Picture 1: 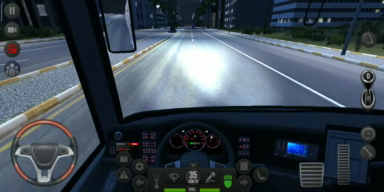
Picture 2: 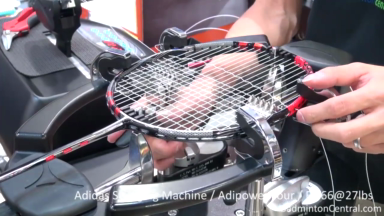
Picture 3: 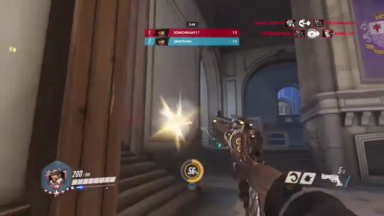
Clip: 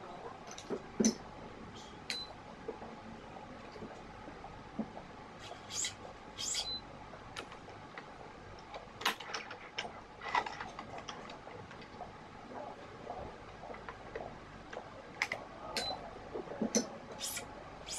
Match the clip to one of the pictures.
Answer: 2